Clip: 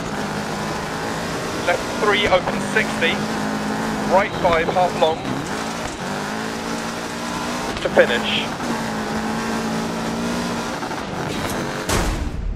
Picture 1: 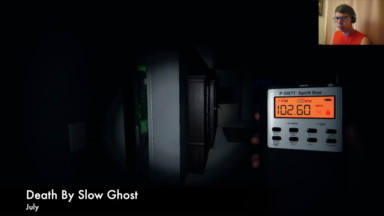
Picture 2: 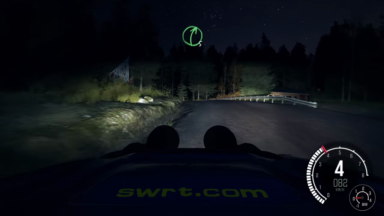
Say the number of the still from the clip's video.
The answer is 2